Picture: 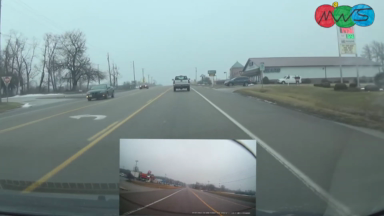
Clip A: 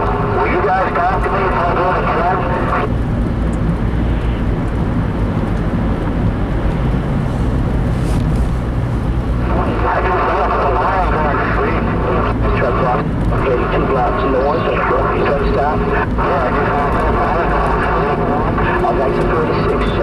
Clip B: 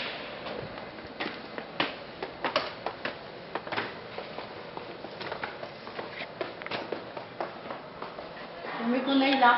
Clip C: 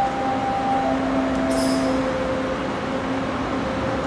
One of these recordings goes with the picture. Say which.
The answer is A